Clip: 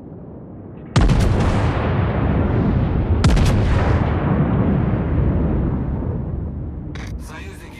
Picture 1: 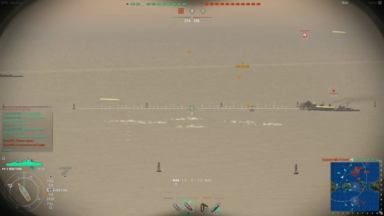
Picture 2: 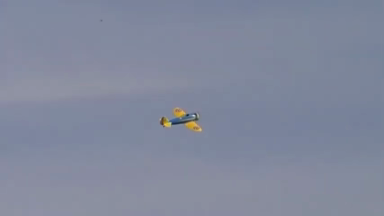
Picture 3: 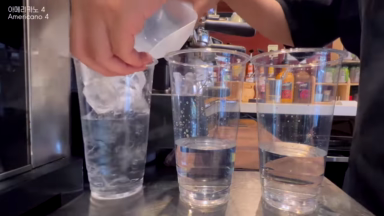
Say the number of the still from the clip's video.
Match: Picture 1